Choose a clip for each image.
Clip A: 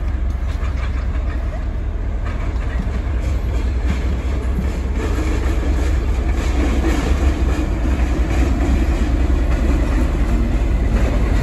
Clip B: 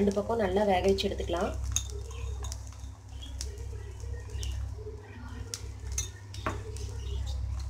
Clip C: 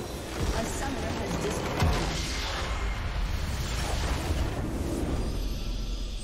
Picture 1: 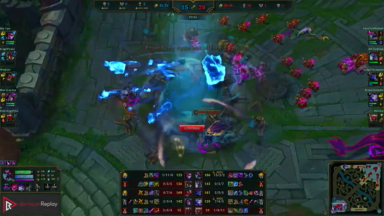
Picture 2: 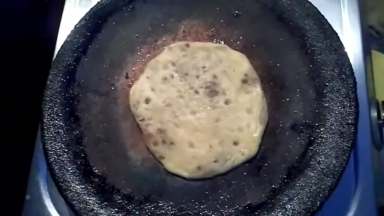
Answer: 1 C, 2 B